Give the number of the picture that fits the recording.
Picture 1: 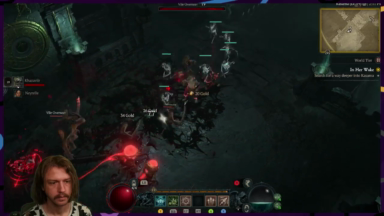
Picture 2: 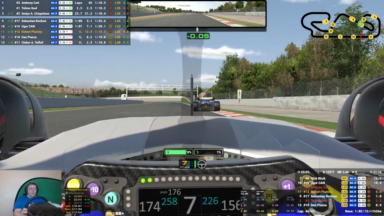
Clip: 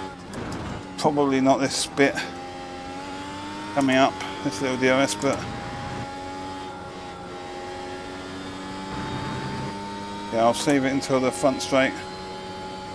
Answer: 2